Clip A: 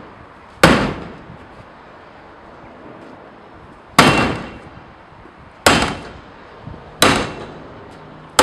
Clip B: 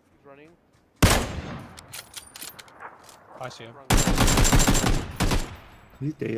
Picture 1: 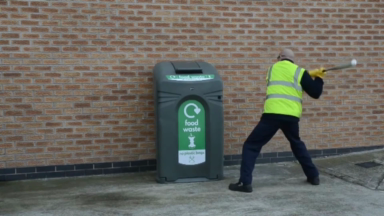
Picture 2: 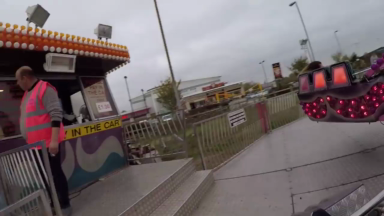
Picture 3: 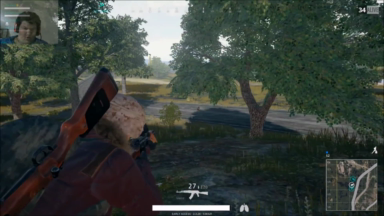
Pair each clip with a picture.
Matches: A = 1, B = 3